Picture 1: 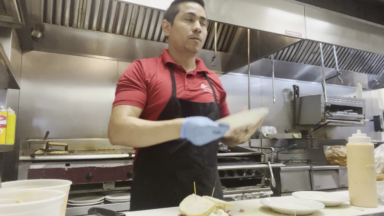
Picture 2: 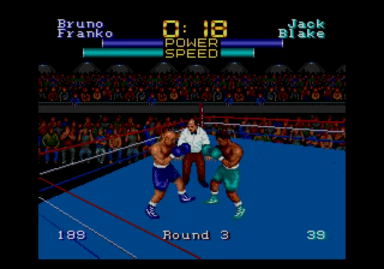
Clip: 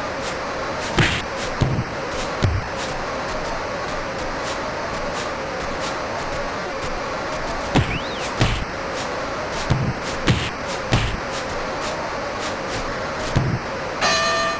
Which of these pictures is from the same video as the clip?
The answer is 2